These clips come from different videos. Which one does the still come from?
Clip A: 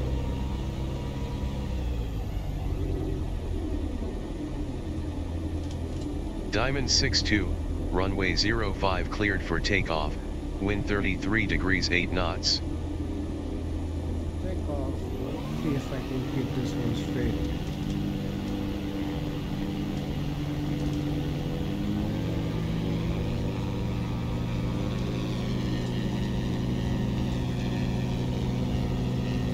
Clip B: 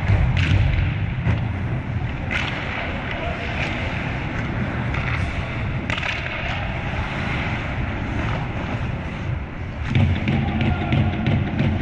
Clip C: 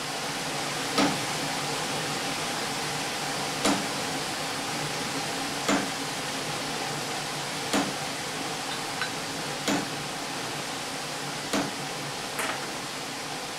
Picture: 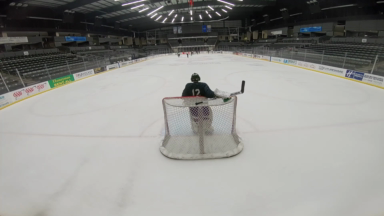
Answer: B